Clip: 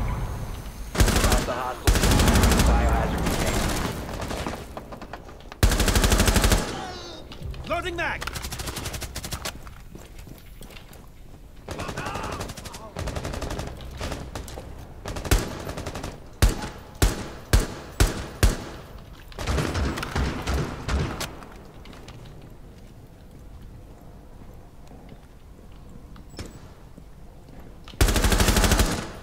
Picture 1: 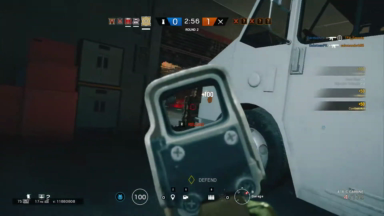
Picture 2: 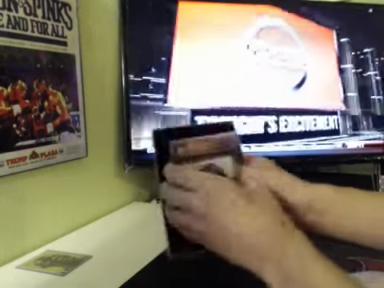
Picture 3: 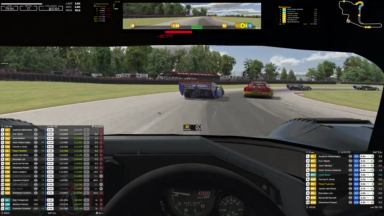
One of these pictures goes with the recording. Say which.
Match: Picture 1